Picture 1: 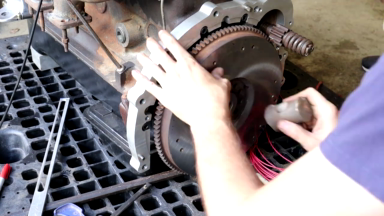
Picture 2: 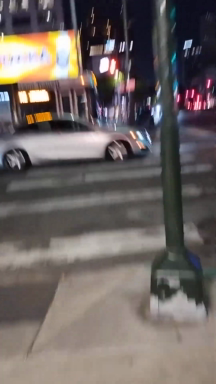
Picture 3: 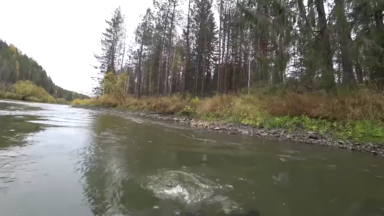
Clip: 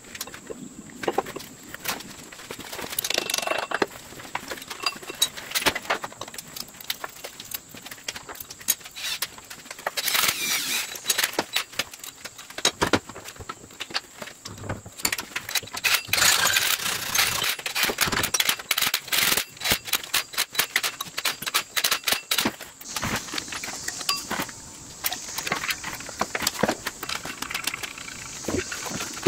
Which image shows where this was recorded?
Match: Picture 1